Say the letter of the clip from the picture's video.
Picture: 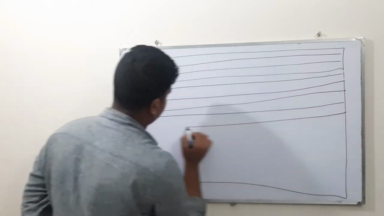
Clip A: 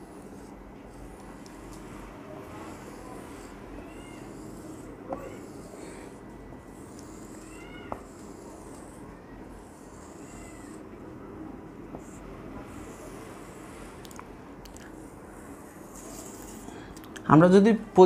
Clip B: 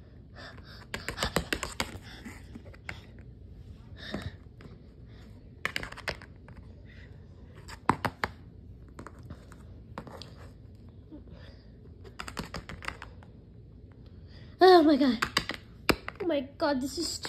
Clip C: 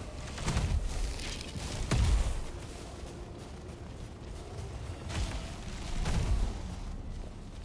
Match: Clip A